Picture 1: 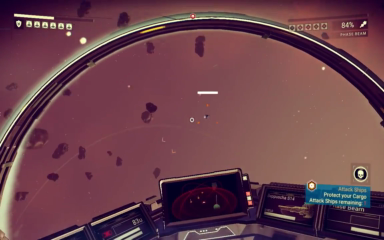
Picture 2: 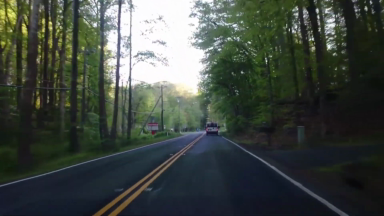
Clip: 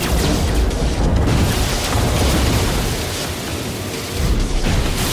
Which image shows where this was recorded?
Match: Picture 1